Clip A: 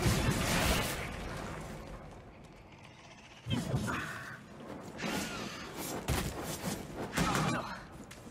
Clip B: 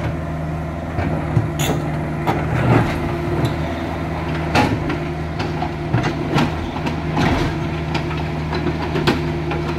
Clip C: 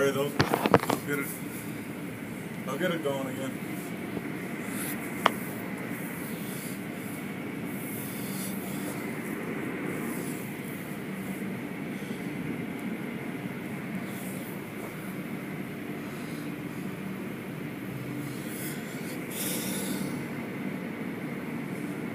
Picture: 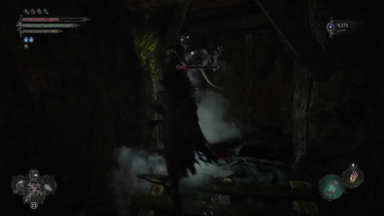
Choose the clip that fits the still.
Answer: A